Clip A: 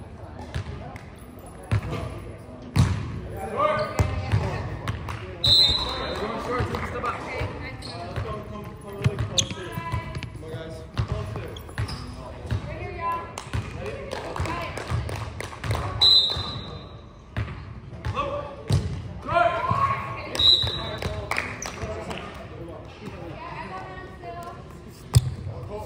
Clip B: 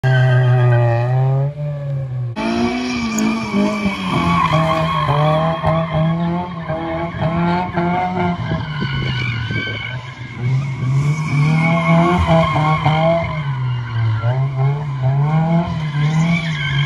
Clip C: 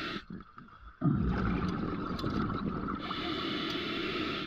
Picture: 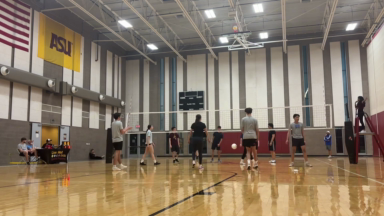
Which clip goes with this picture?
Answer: A